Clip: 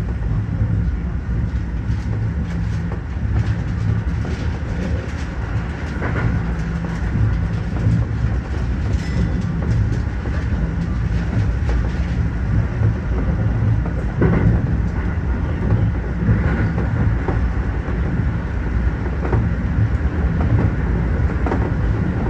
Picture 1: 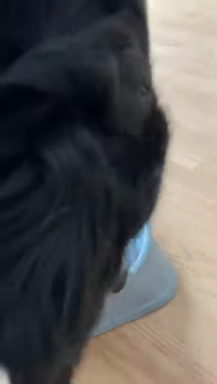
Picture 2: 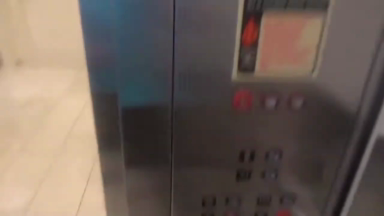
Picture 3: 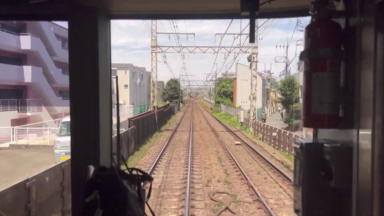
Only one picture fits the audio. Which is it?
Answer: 3